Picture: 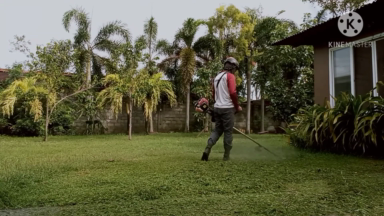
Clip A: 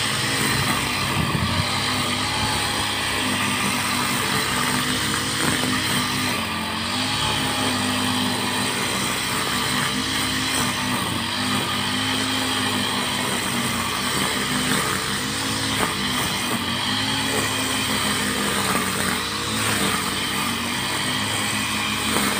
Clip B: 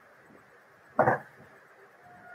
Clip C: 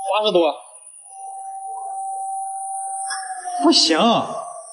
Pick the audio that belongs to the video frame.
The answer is A